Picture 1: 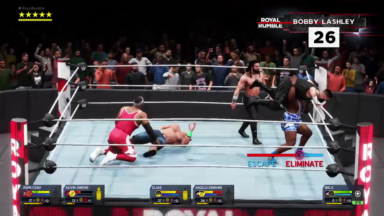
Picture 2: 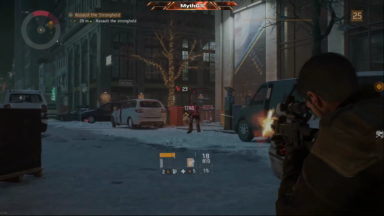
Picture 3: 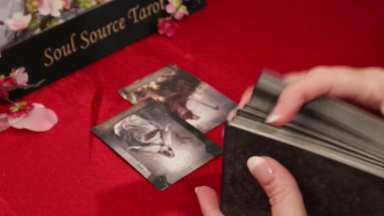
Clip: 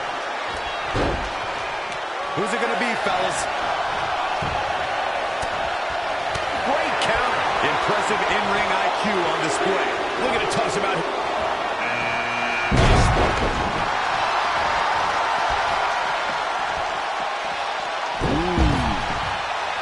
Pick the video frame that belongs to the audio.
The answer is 1